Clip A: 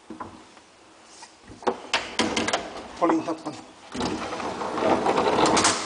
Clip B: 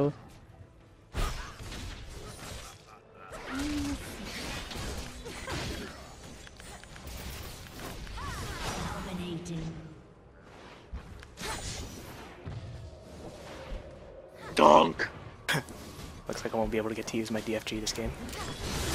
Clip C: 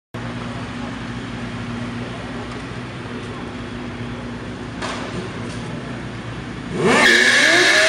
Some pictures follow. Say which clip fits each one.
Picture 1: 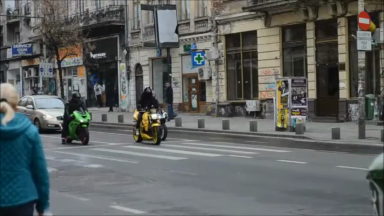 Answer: C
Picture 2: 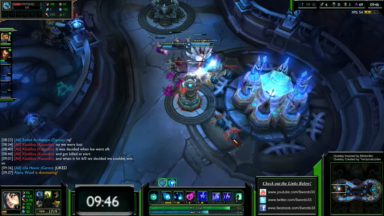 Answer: B